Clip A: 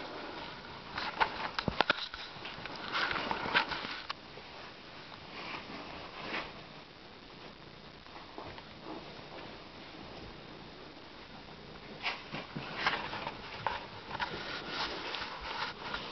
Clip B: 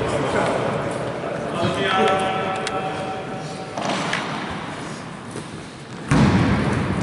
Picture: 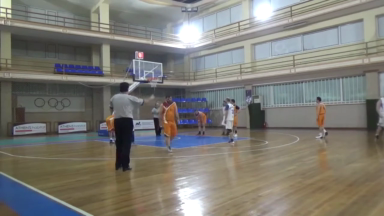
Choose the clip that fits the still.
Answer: B